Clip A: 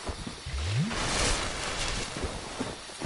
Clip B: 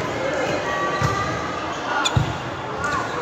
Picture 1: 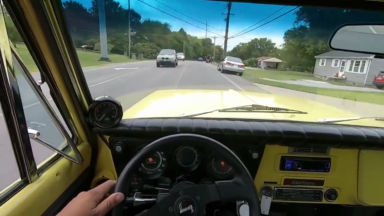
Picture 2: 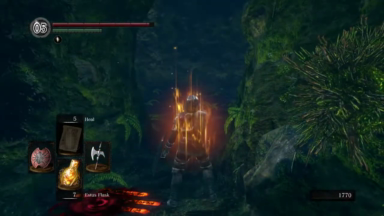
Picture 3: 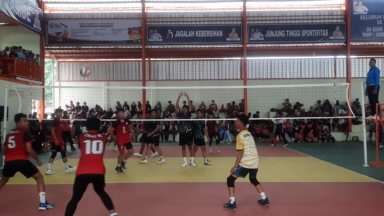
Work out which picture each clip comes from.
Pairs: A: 2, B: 3